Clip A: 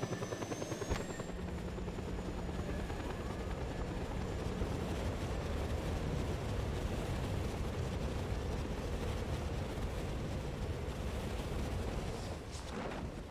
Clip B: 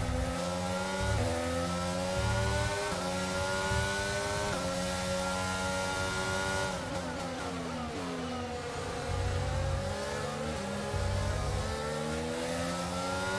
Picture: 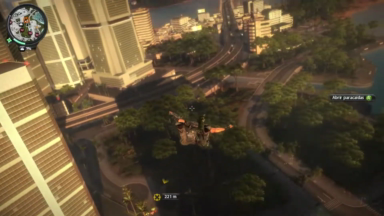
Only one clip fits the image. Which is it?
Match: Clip A